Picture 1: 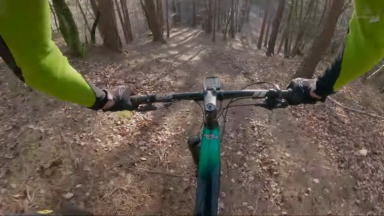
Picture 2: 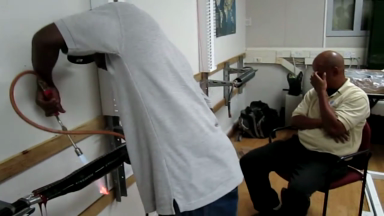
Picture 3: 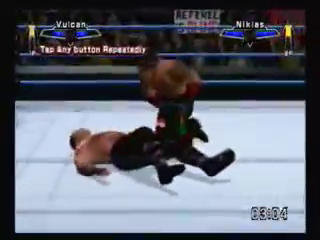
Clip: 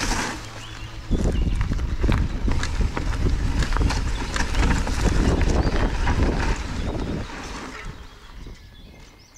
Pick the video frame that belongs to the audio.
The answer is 1